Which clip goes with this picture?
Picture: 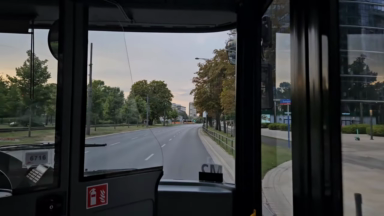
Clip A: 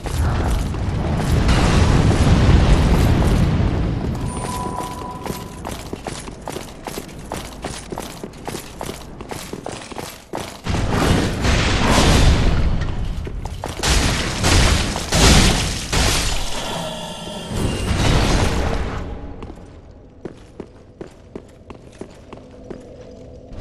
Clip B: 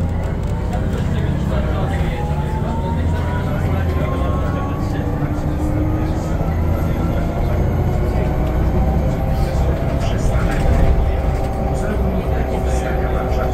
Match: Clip B